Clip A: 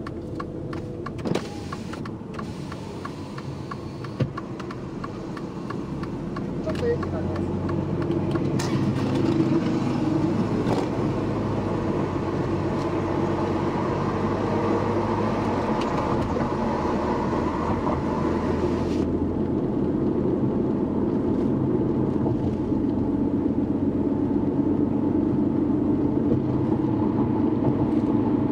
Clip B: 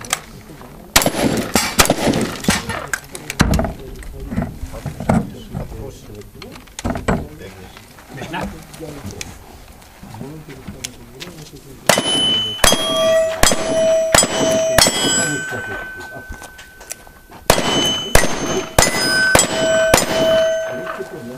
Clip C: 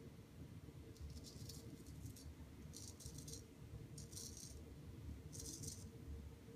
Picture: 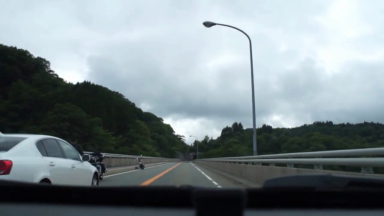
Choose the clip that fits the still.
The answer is A